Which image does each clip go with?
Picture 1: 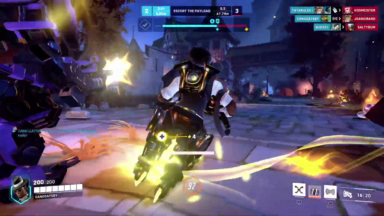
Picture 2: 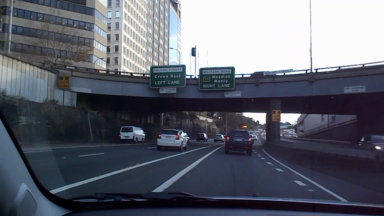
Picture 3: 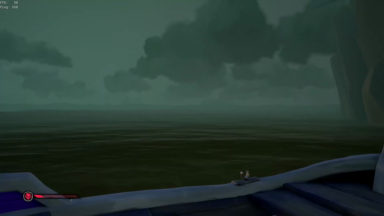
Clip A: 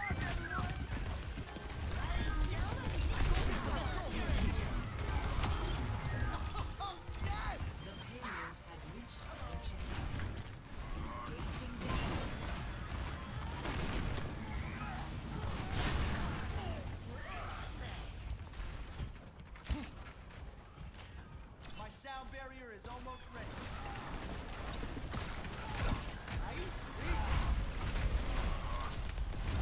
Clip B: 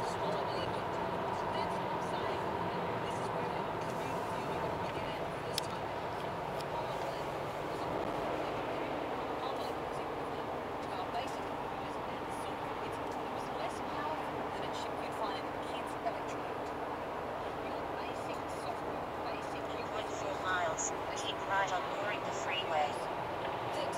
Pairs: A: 1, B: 2